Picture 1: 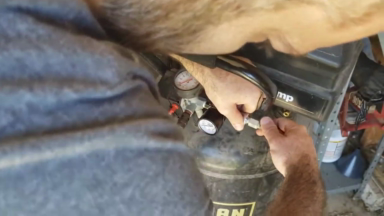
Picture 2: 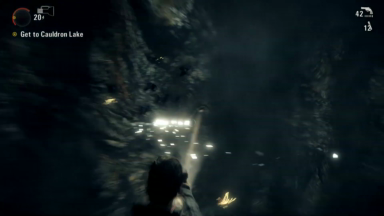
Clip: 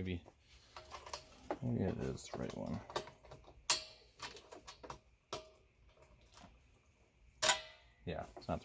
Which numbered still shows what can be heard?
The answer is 1